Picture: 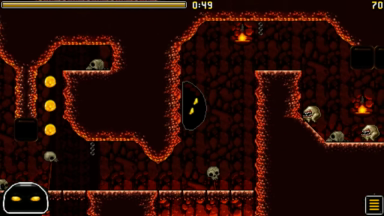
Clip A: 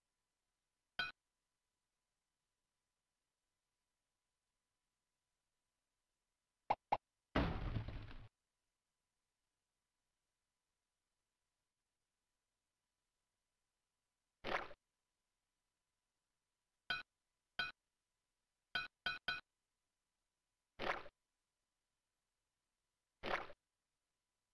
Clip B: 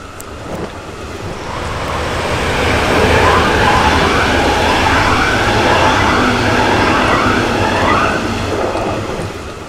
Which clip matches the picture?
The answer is A